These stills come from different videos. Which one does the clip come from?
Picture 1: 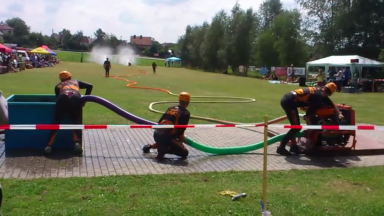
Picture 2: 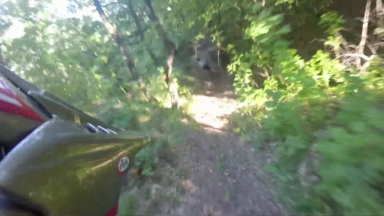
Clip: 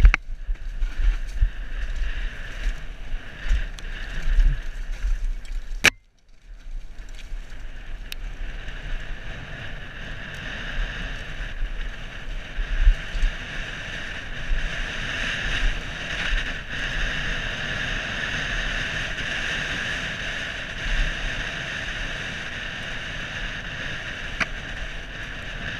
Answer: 2